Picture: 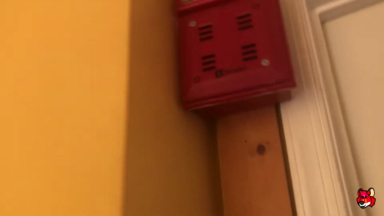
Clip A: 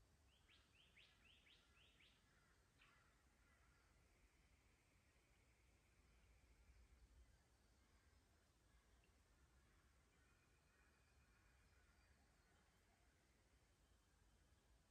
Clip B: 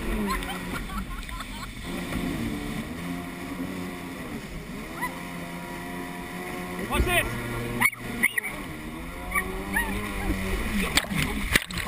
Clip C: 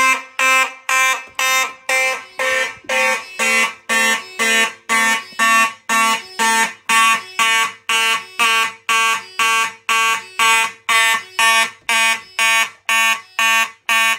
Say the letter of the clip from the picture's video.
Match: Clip C